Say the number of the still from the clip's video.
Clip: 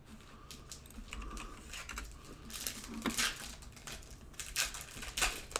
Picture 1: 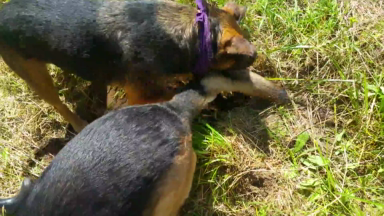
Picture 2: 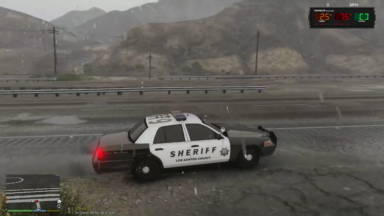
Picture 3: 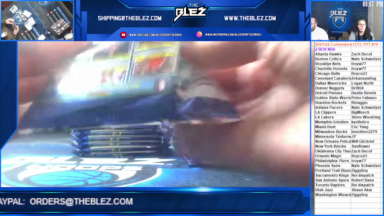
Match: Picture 3